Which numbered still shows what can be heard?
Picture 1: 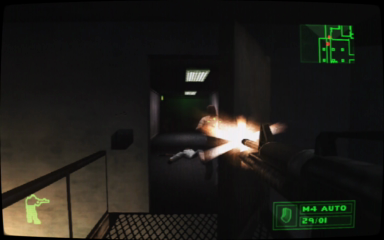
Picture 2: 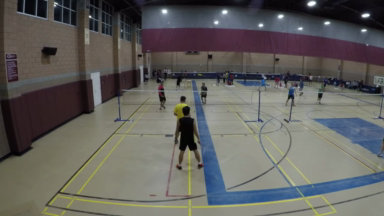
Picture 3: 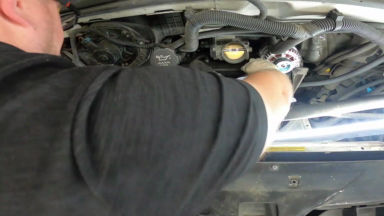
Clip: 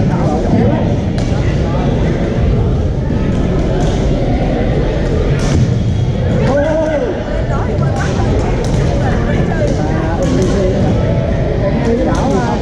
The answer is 2